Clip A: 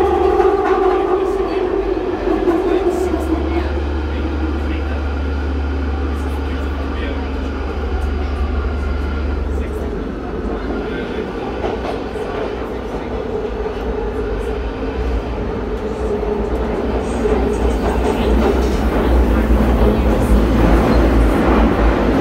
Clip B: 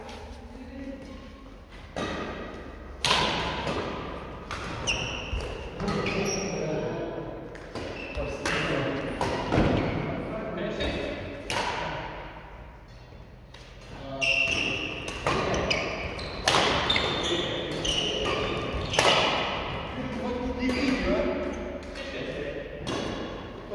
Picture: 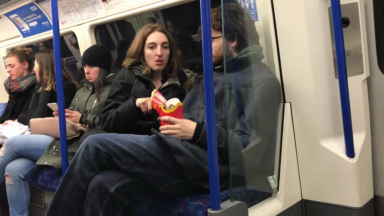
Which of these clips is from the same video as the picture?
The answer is A